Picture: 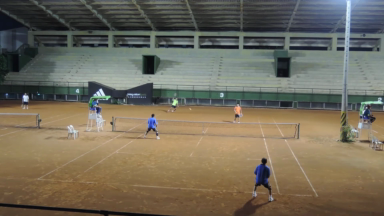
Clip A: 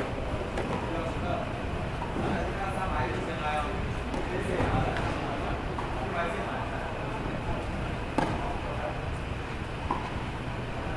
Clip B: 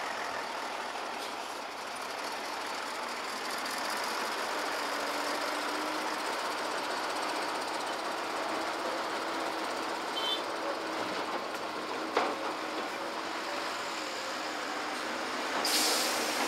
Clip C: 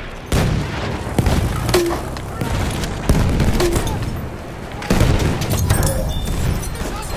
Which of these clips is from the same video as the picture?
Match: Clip A